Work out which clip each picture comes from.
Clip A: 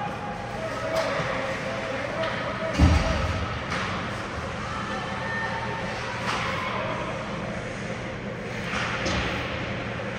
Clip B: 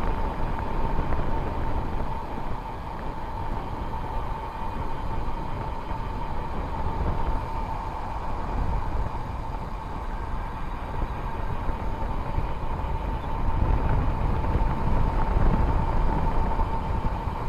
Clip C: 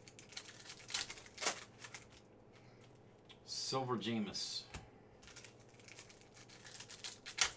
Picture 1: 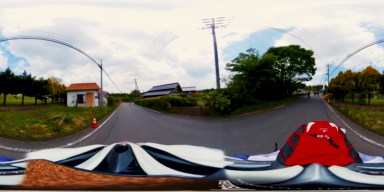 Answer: B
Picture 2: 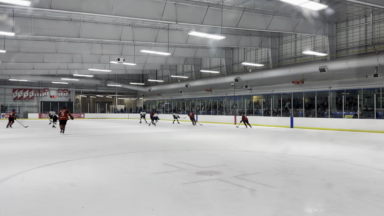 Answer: A